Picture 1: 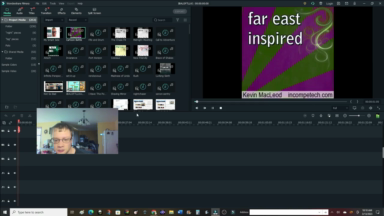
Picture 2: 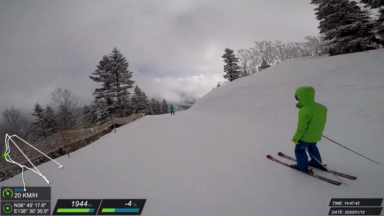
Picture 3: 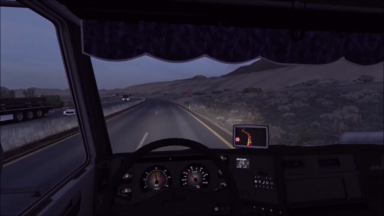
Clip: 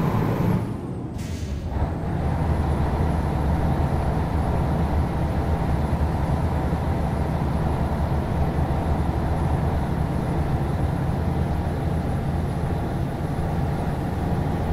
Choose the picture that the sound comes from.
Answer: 3